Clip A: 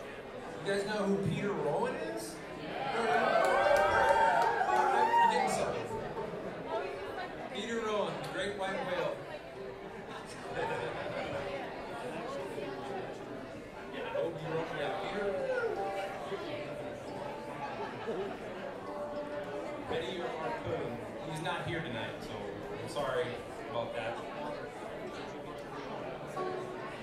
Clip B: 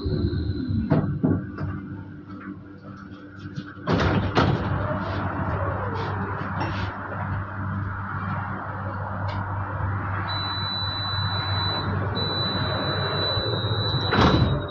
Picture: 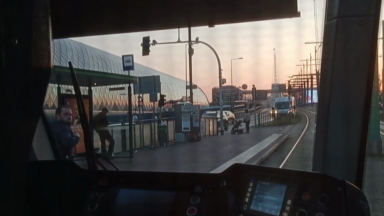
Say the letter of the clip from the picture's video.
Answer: B